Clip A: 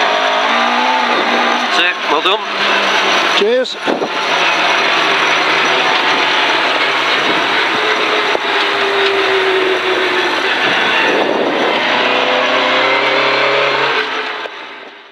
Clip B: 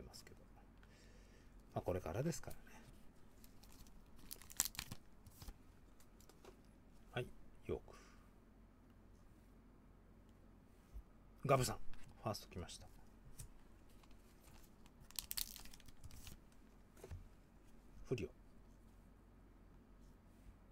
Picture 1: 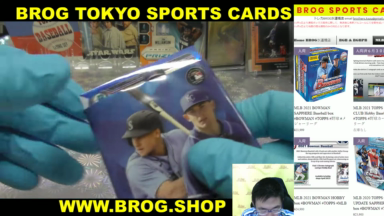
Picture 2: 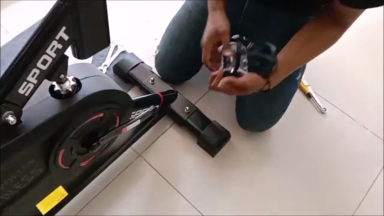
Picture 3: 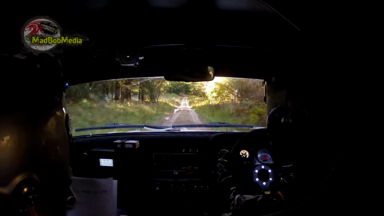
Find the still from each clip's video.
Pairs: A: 3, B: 1